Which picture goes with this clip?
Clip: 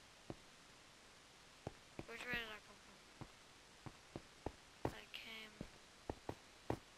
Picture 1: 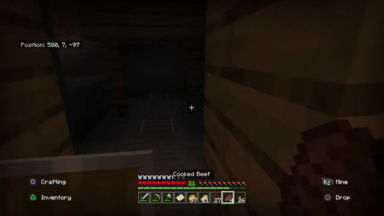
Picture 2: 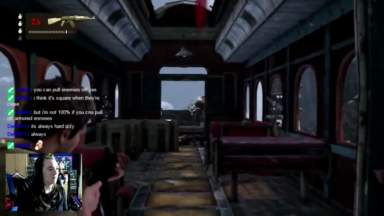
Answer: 1